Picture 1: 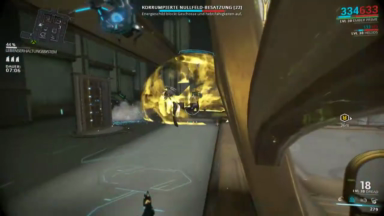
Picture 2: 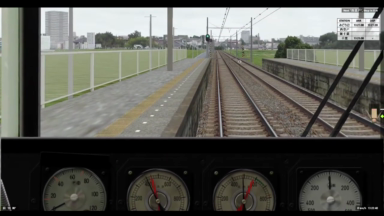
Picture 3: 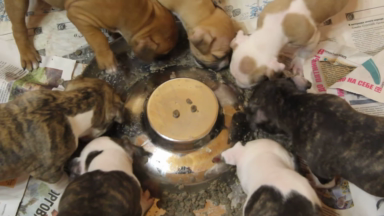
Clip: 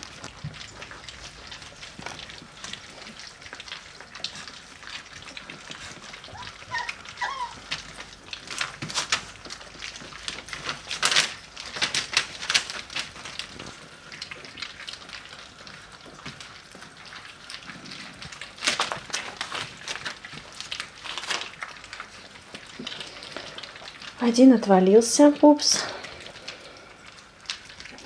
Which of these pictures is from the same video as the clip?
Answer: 3